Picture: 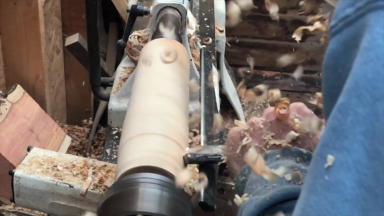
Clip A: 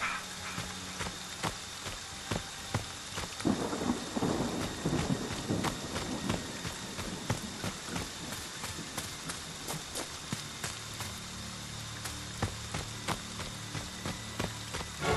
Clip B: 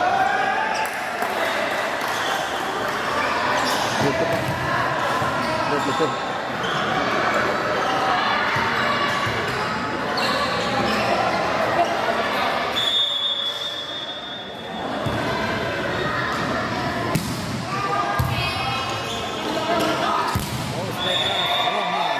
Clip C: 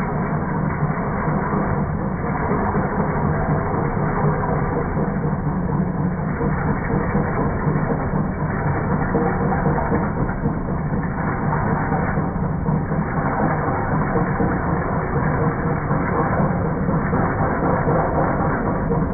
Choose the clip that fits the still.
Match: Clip C